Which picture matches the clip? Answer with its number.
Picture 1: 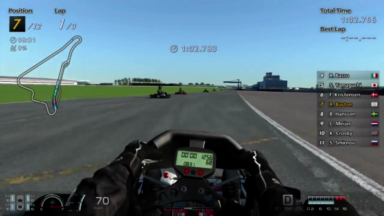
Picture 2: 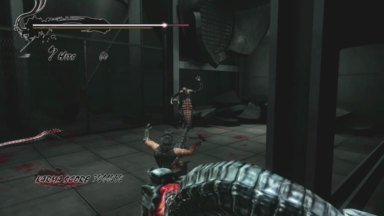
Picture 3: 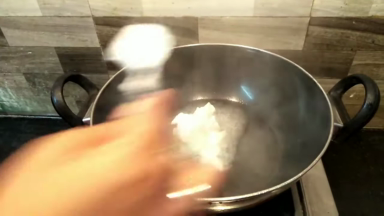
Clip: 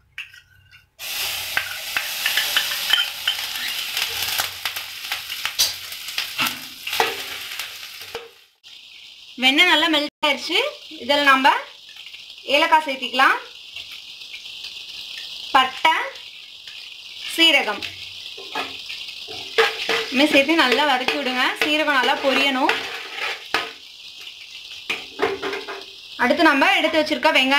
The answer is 3